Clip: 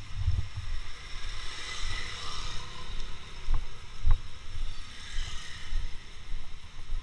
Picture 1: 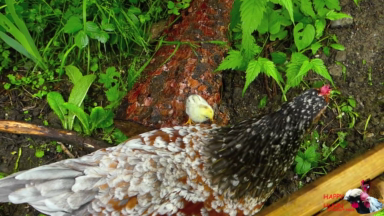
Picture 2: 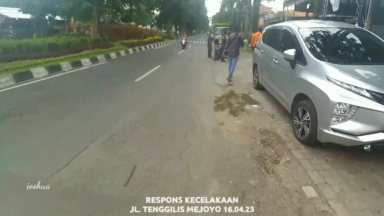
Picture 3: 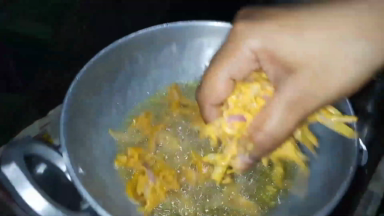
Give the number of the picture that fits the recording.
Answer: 2